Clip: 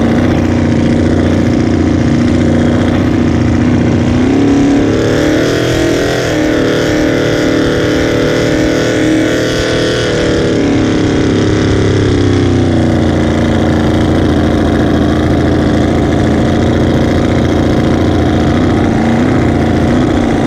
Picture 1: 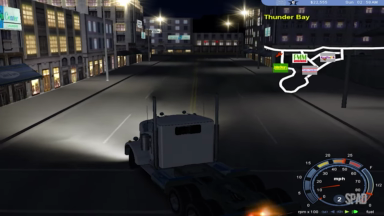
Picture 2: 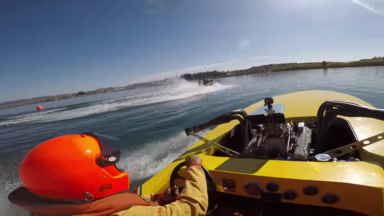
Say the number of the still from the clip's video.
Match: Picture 2